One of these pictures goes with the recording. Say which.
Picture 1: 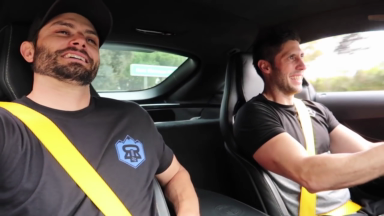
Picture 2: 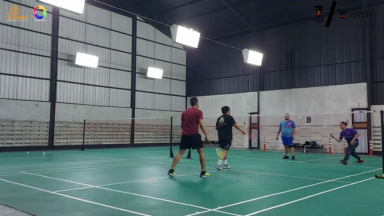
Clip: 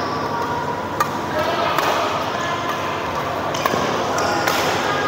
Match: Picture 2